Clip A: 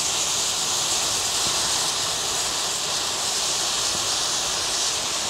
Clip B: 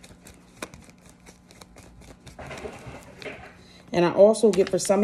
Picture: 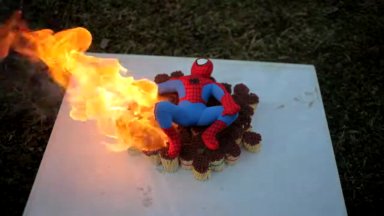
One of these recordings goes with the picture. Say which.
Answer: A